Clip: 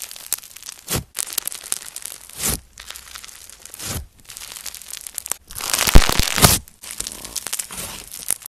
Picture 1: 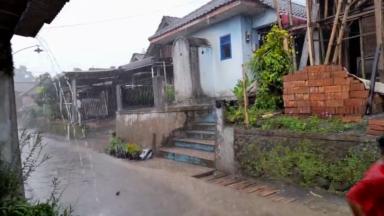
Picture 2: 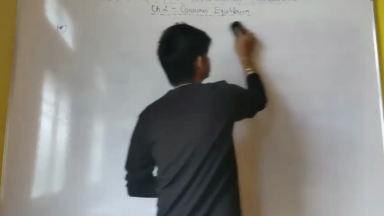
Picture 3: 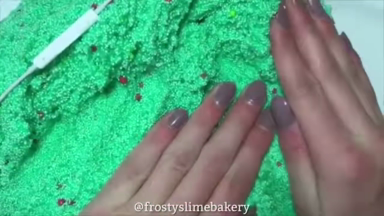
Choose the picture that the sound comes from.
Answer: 3